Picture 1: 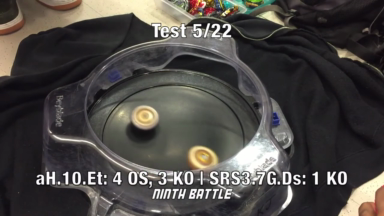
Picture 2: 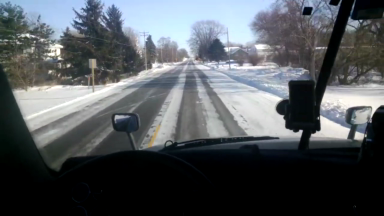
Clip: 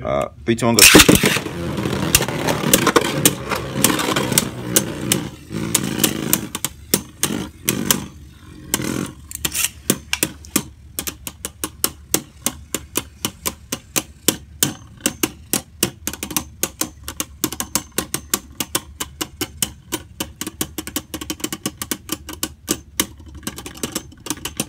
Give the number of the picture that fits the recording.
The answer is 1